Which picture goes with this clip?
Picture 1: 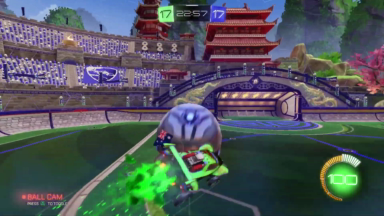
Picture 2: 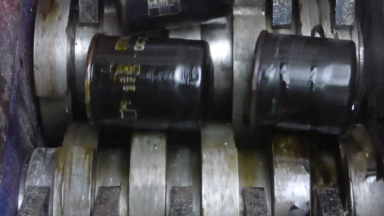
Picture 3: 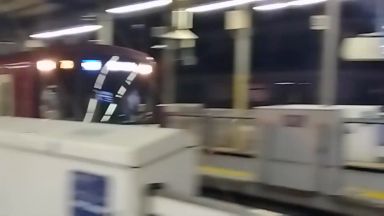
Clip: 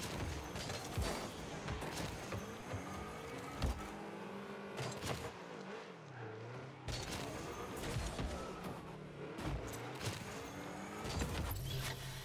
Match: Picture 1